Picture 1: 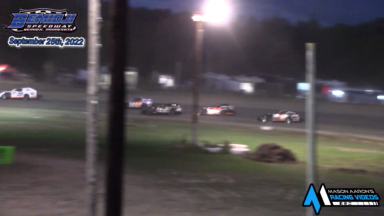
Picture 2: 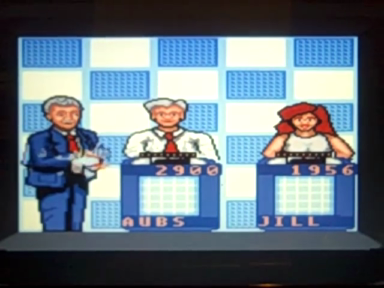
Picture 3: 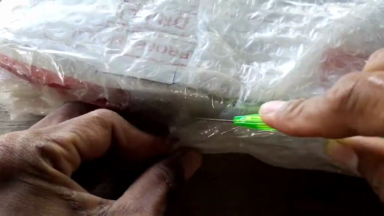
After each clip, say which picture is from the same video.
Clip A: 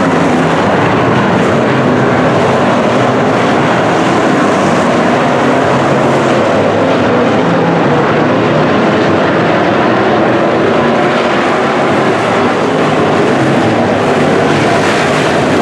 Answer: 1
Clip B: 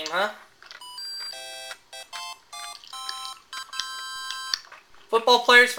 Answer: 2